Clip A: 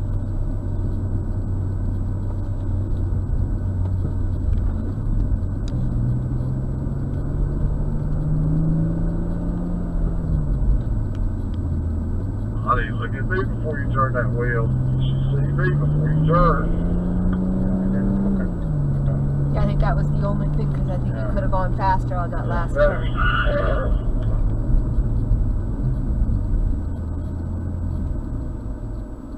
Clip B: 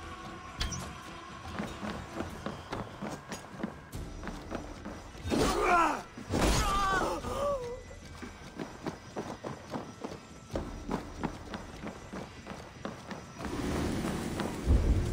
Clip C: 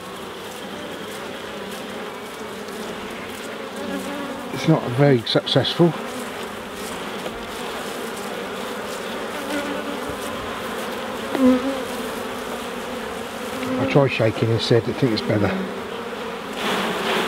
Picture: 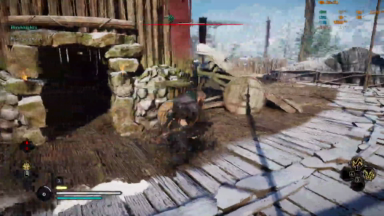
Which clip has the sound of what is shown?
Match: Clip B